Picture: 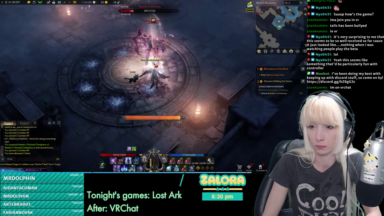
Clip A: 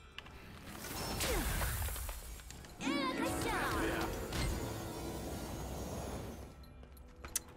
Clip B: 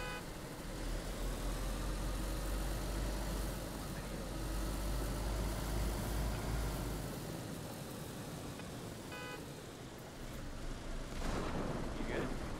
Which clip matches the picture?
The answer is A